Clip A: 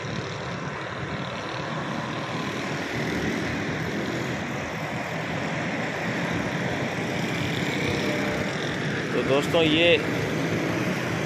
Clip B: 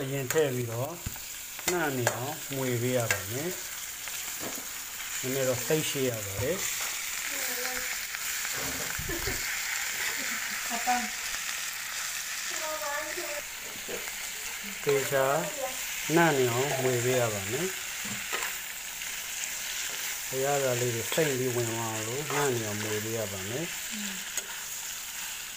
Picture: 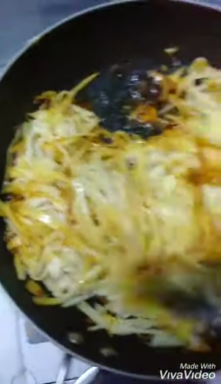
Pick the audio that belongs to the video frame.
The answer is B